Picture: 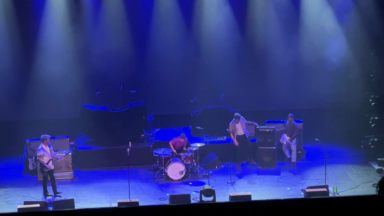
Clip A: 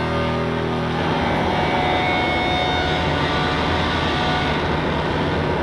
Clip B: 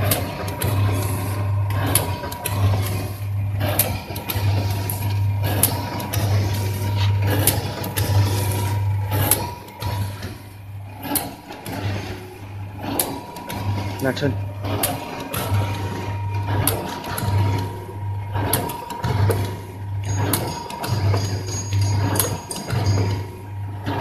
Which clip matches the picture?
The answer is A